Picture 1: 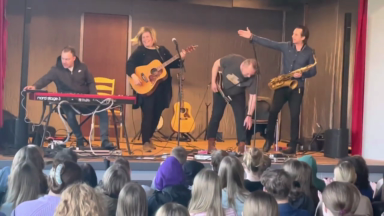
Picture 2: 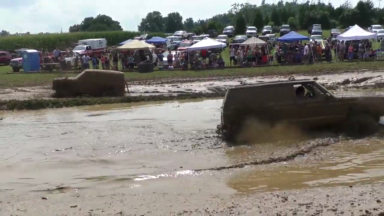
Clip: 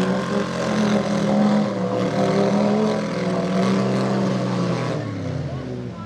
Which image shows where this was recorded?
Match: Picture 2